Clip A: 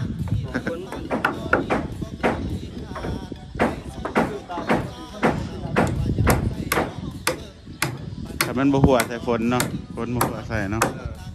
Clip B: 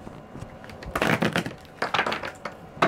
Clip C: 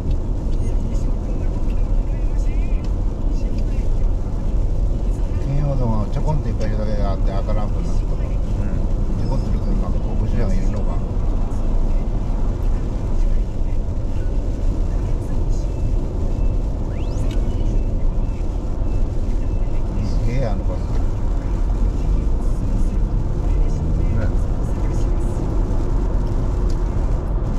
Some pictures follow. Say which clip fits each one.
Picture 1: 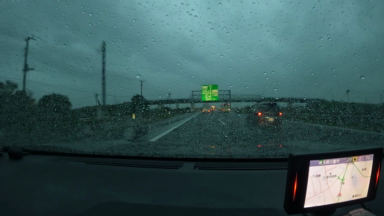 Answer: C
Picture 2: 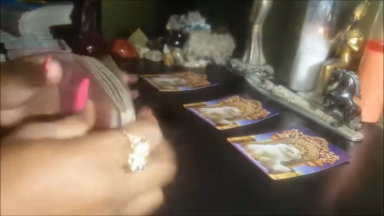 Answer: B